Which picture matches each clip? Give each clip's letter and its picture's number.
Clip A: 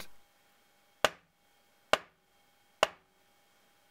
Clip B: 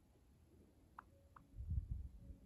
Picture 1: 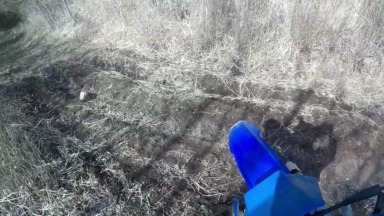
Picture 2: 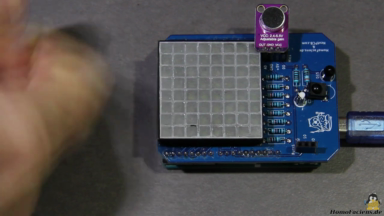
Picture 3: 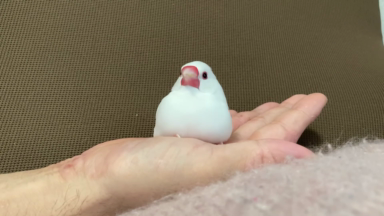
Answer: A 2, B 3